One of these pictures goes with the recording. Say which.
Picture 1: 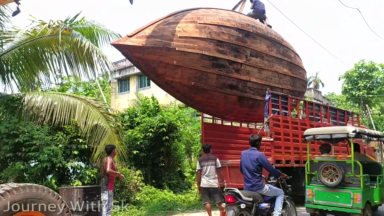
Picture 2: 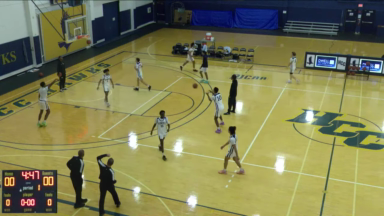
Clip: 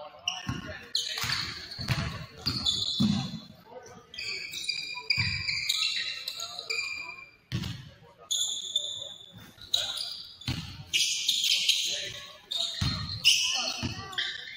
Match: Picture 2